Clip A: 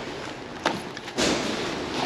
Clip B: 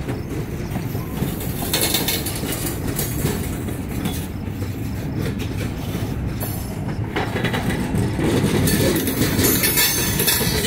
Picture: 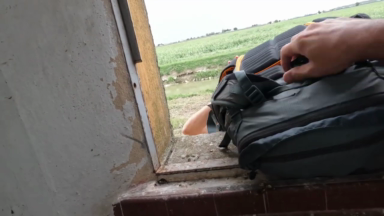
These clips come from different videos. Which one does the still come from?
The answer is A